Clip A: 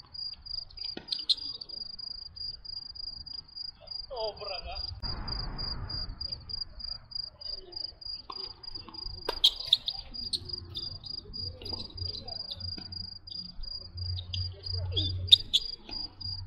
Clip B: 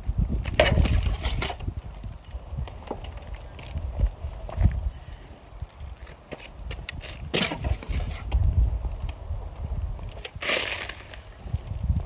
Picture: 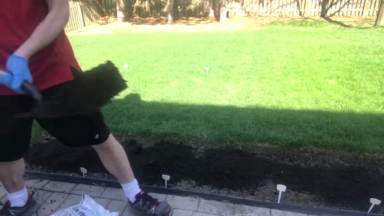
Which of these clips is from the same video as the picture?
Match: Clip B